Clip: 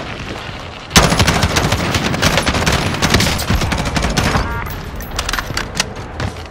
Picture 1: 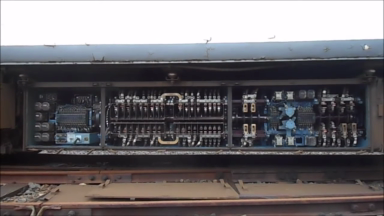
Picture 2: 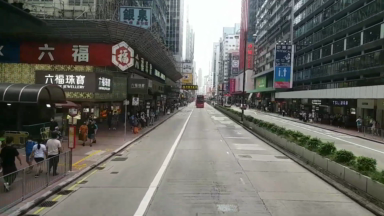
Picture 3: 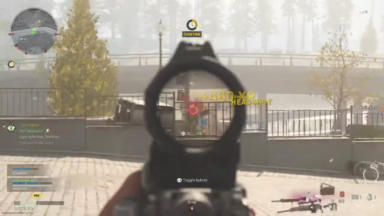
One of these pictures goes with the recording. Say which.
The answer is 3